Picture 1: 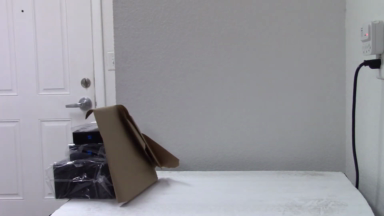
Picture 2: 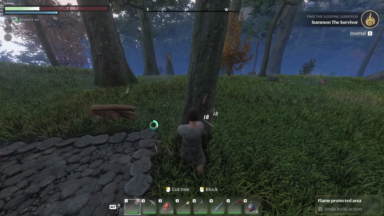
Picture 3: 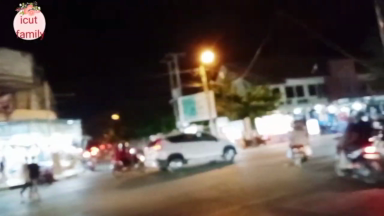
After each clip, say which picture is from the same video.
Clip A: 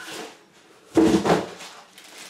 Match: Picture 1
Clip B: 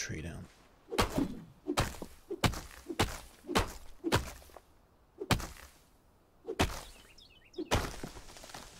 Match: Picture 2